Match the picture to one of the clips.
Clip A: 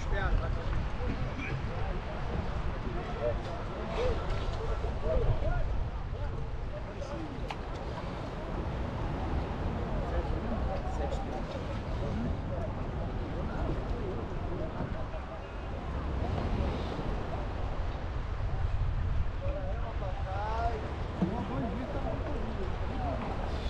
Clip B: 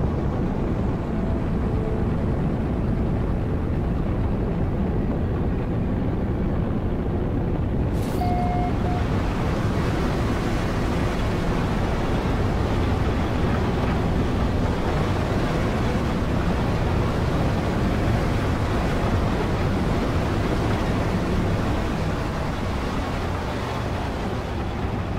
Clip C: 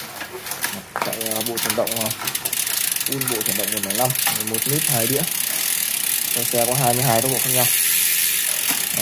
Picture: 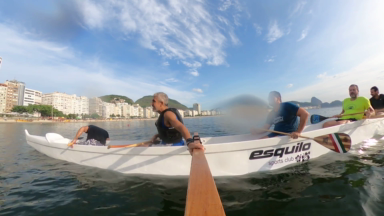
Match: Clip A